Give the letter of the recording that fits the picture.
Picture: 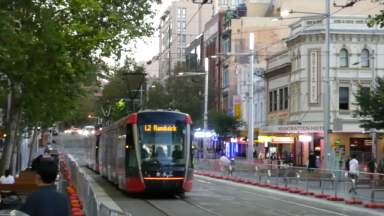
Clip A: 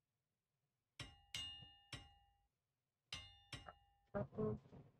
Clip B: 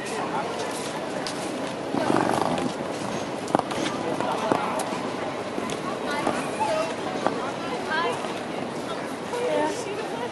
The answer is B